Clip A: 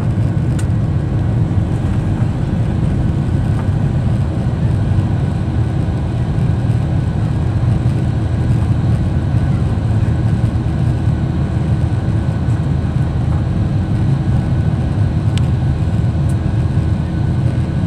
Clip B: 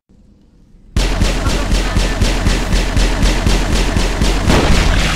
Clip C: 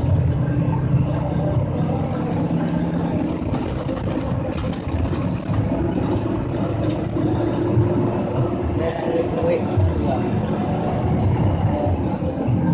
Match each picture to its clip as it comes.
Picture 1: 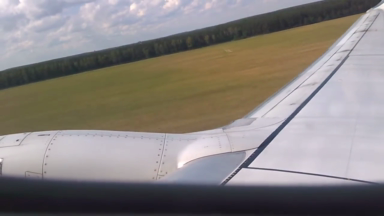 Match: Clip A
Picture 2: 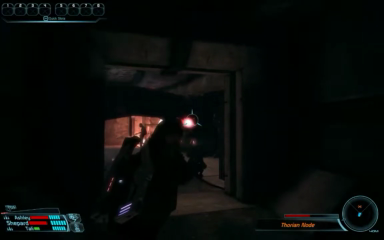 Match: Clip B